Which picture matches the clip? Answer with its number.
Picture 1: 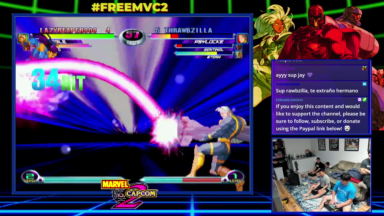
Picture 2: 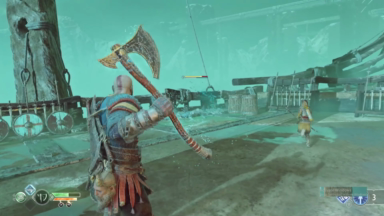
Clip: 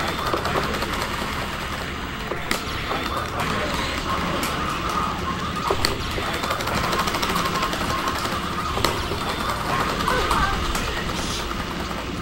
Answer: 1